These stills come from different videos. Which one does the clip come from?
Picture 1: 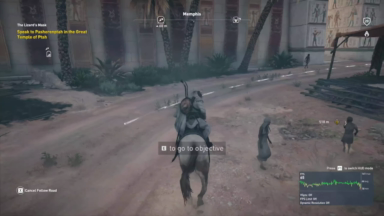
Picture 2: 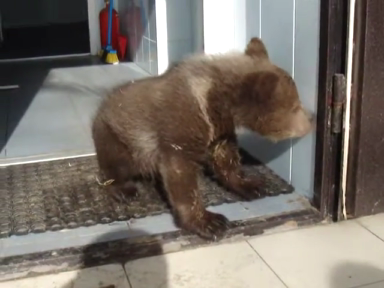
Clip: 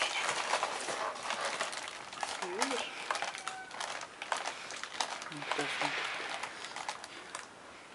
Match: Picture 2